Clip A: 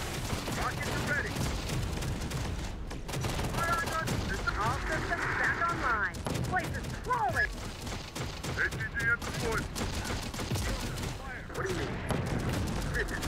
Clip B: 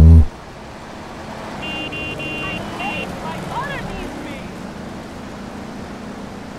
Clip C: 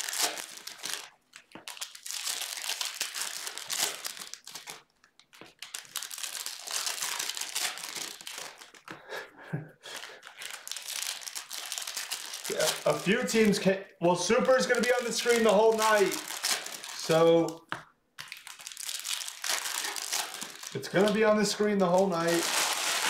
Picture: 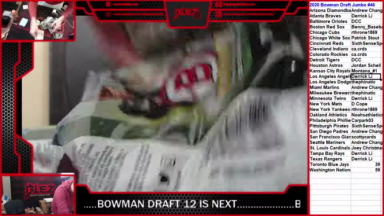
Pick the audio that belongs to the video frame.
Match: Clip C